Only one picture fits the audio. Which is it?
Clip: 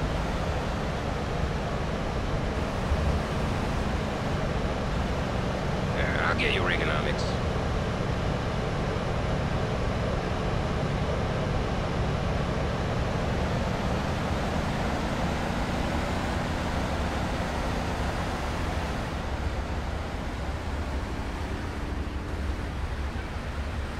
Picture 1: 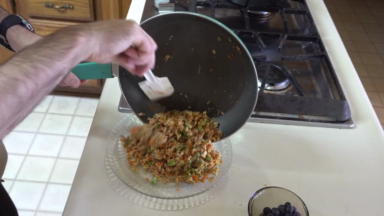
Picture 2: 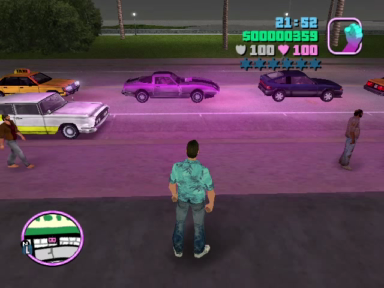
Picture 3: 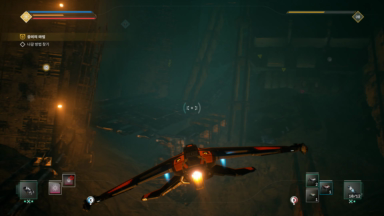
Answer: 2